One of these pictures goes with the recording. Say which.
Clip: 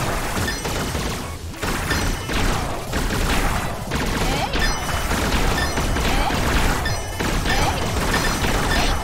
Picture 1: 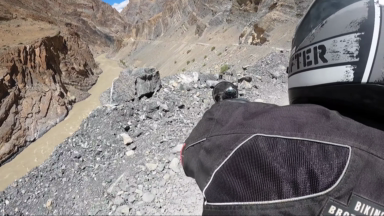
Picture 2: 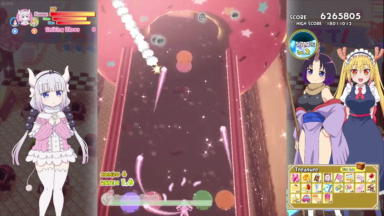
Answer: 2